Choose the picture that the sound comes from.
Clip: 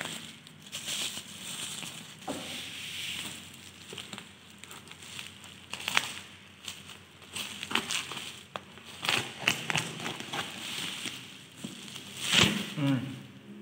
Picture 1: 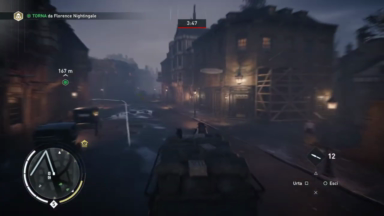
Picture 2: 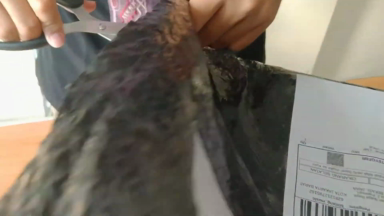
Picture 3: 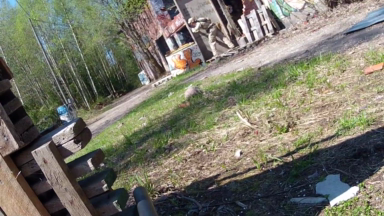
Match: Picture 2